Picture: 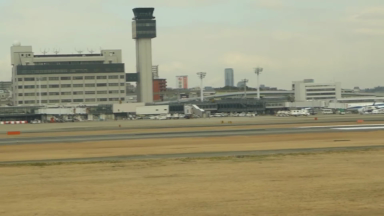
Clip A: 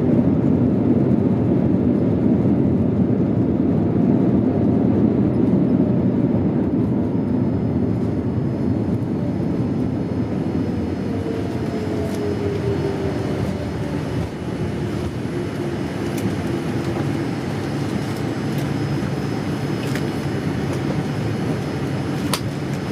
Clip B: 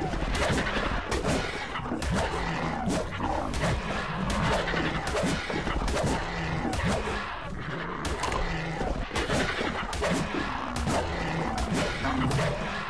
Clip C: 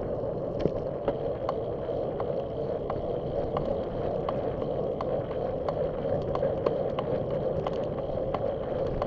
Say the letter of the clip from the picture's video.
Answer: A